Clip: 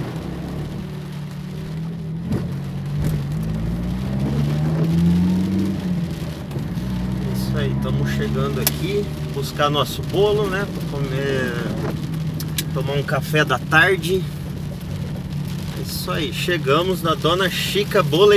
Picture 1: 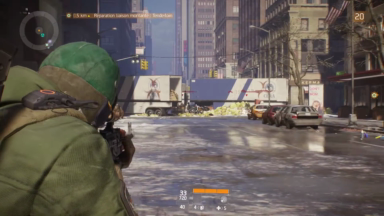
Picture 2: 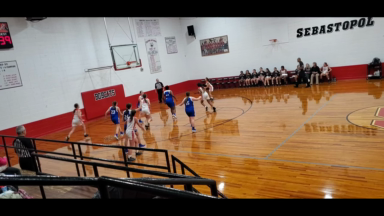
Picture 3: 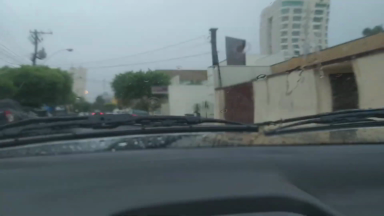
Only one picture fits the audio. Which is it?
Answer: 3